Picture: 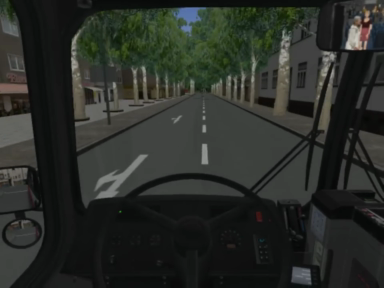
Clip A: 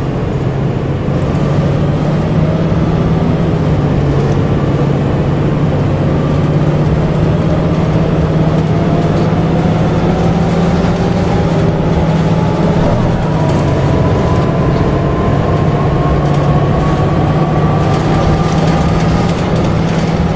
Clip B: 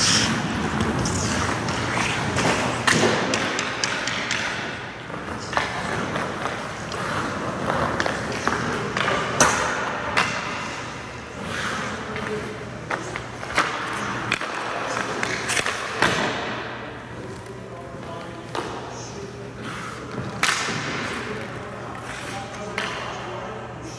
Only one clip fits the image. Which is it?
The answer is A